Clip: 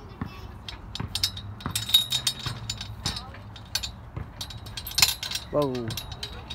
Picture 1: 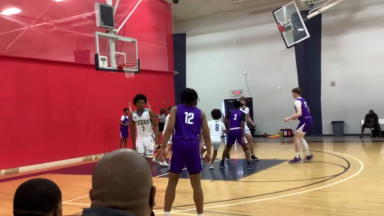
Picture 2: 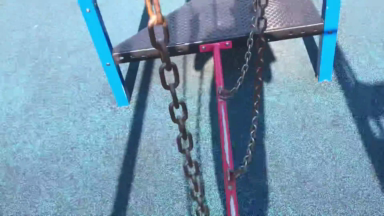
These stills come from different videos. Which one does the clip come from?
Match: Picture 2